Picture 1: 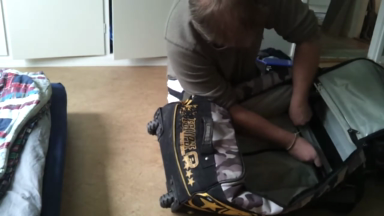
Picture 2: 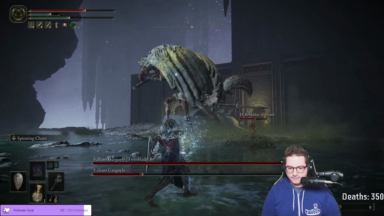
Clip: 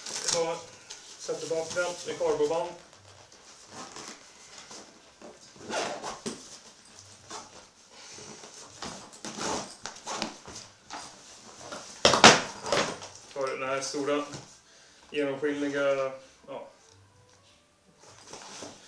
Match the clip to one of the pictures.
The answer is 1